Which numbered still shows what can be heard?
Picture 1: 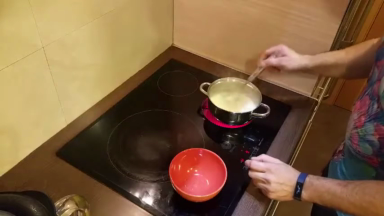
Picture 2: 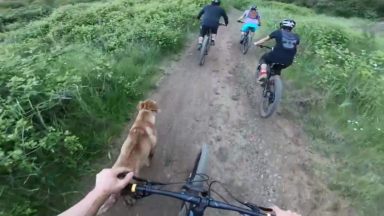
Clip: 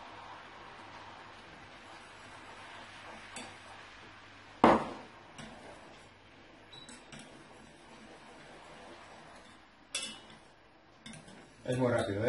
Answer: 1